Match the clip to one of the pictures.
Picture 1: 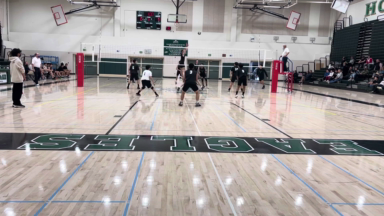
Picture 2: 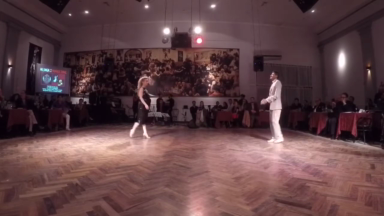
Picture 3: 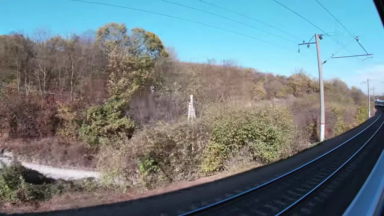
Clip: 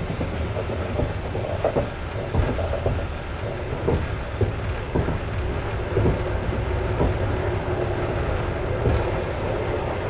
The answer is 3